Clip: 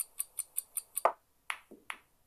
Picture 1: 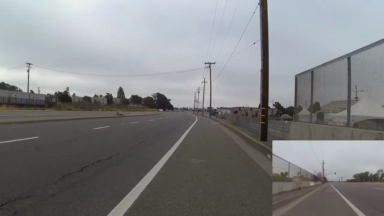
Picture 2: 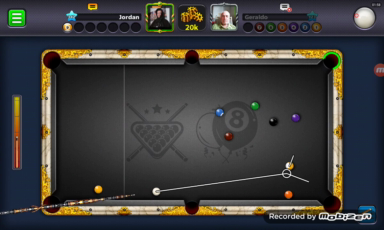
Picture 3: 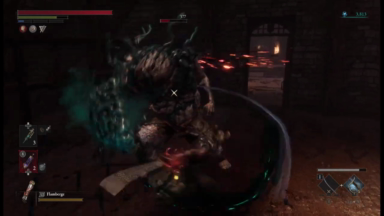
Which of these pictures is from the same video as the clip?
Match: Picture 2